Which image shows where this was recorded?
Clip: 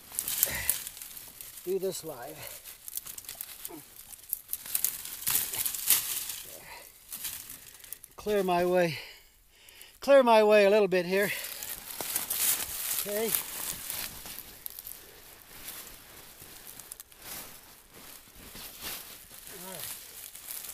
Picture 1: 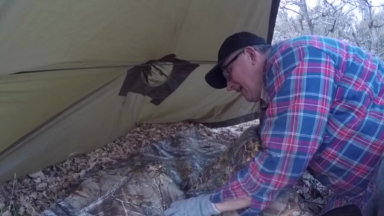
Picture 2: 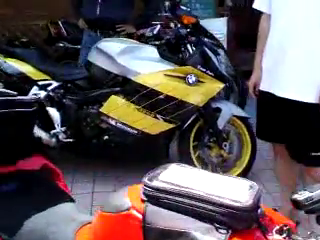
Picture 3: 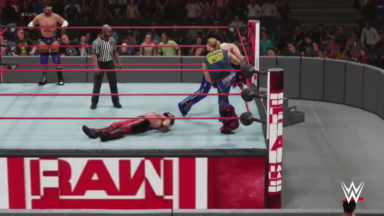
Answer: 1